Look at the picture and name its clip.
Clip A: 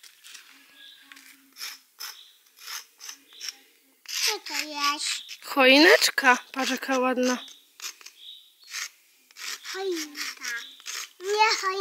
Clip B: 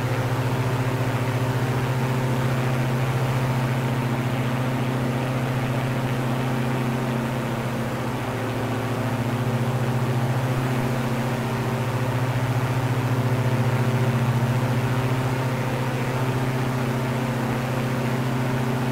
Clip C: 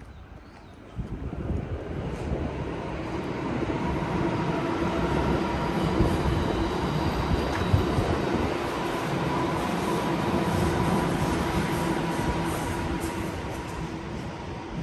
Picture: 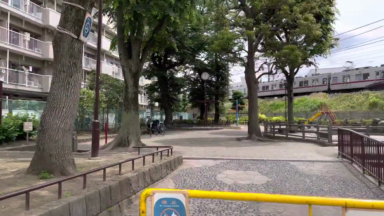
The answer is C